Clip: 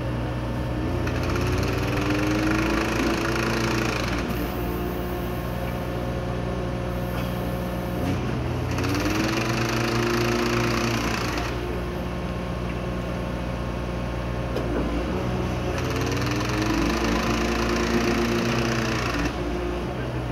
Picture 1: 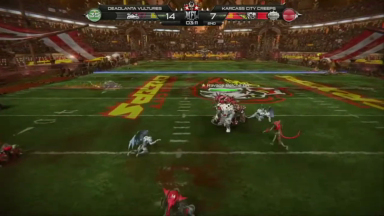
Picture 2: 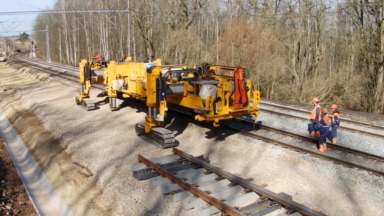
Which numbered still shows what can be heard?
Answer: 2